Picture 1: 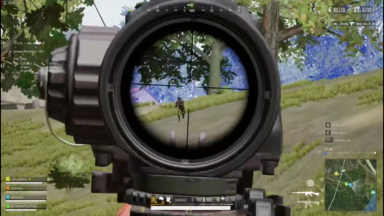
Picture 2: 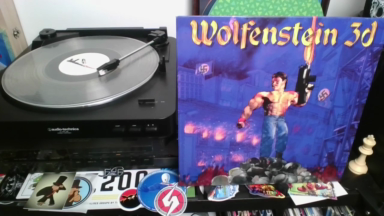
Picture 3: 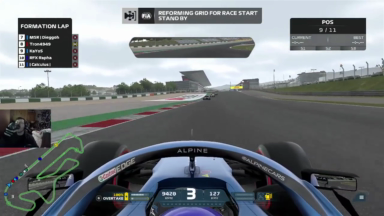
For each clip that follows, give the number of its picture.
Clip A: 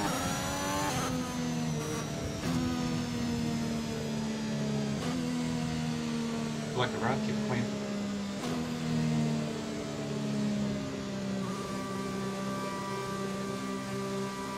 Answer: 3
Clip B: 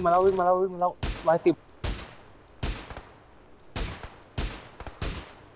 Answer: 1